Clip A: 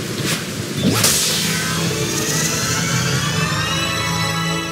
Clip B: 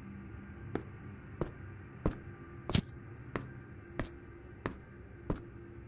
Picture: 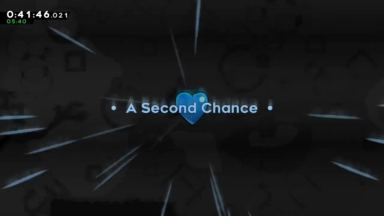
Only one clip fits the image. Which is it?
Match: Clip A